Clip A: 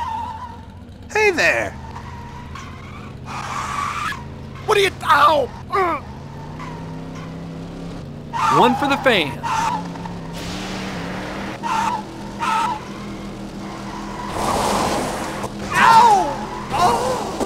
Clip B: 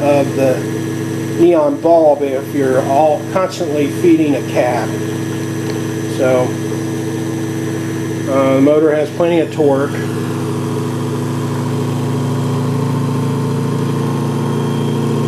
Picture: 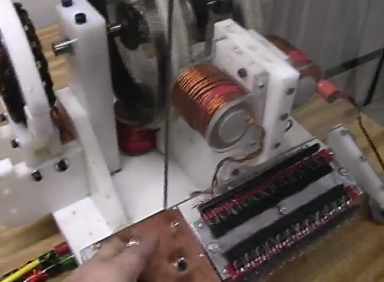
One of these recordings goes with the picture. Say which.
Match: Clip B